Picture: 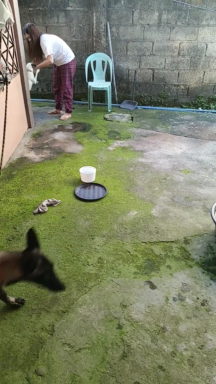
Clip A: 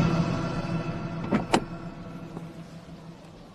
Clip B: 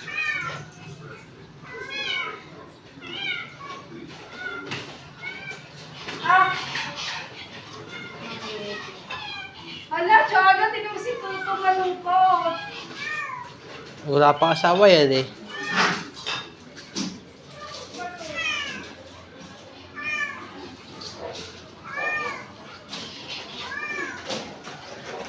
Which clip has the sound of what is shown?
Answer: B